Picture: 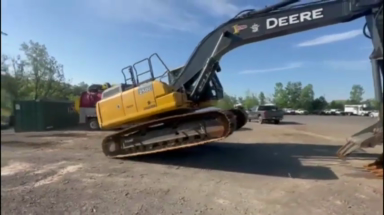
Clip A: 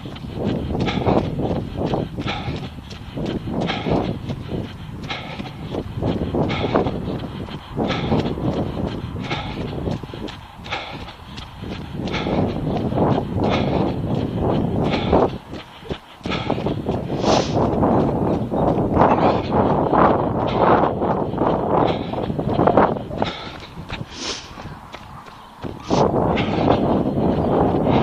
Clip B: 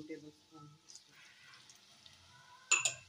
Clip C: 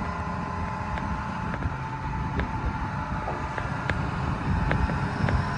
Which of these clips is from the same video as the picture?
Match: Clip C